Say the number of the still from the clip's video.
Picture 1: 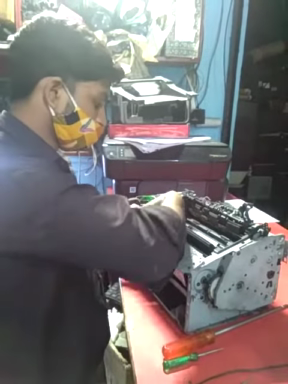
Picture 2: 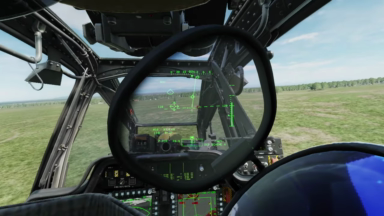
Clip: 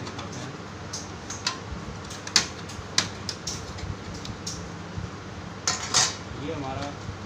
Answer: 1